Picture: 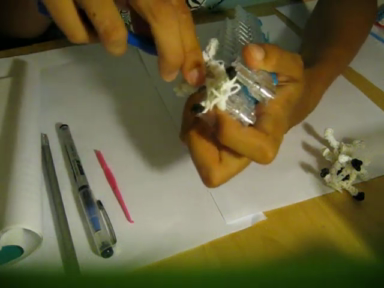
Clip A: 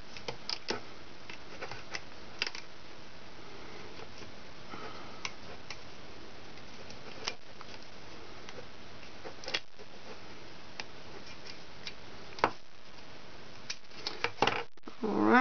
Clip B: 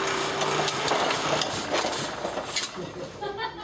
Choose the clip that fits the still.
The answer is A